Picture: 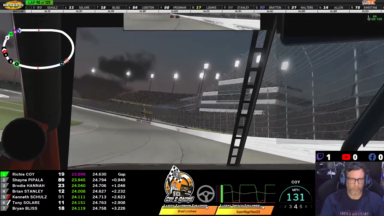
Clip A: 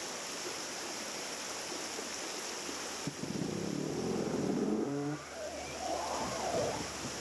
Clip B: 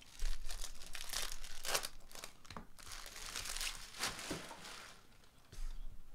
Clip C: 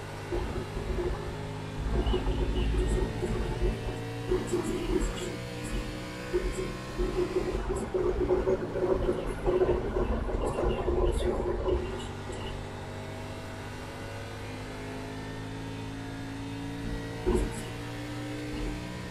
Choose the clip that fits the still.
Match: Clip C